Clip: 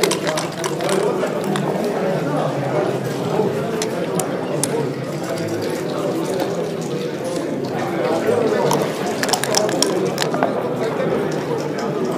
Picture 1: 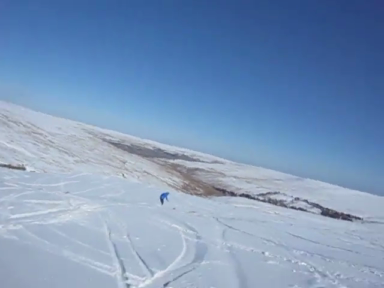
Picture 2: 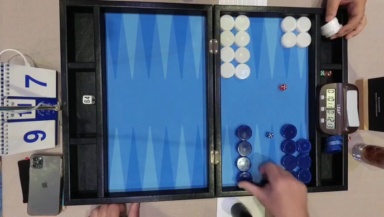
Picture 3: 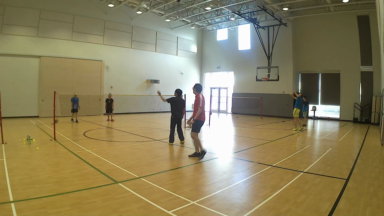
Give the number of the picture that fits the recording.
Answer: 2